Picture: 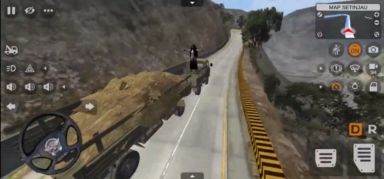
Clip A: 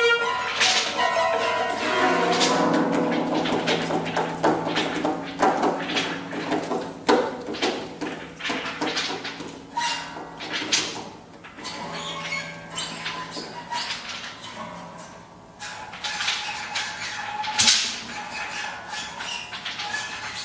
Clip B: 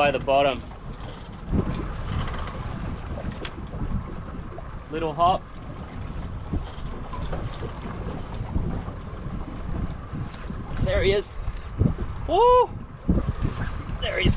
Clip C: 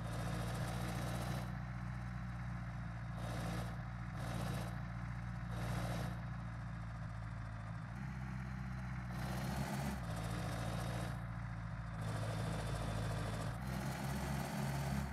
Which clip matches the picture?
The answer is C